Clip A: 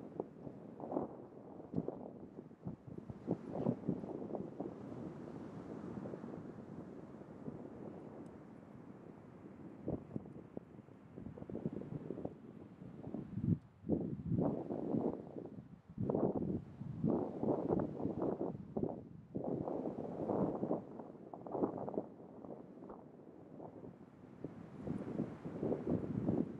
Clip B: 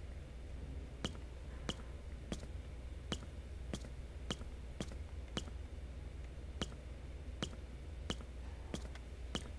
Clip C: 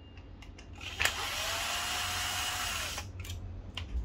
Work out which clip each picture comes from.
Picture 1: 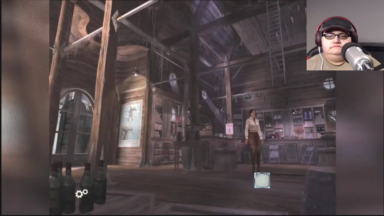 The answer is B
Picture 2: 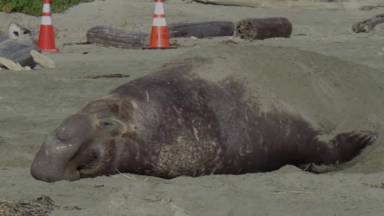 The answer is A